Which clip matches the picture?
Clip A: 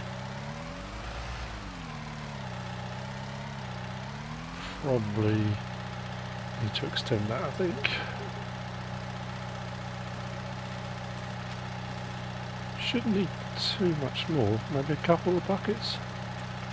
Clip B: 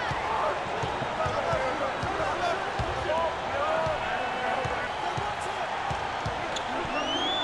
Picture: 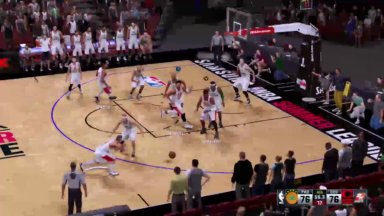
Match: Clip B